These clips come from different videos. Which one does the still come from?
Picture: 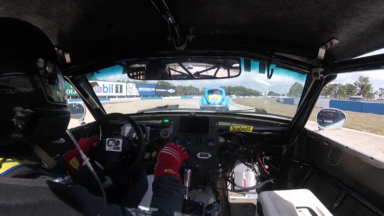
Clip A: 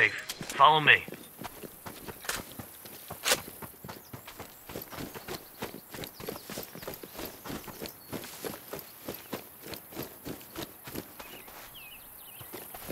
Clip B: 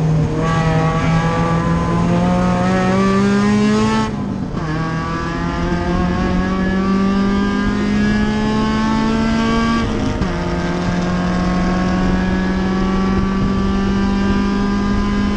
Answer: B